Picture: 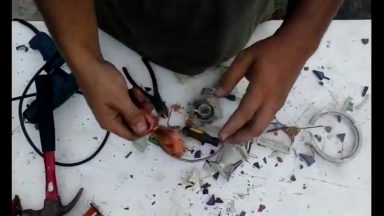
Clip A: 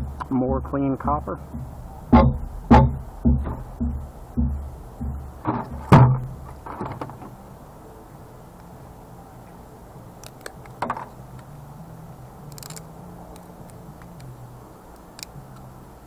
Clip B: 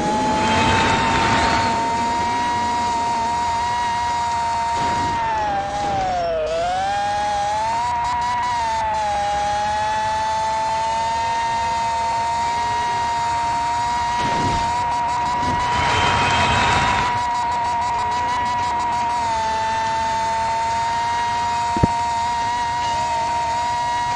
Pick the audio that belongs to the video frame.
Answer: A